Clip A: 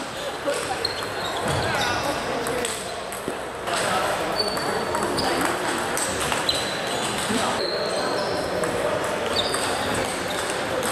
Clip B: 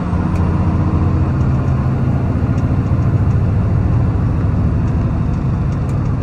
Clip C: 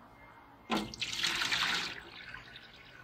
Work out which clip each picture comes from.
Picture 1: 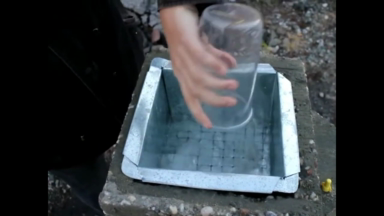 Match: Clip C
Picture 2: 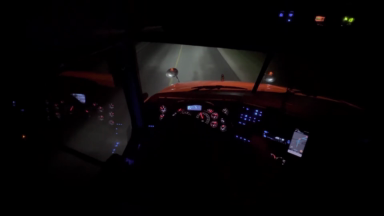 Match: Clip B